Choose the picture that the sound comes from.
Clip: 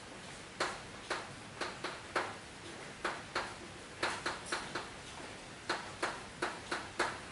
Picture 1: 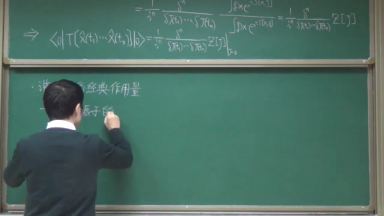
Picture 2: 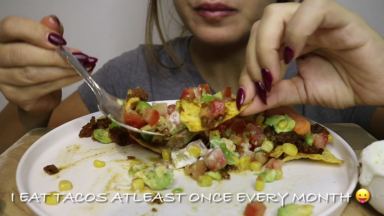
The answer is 1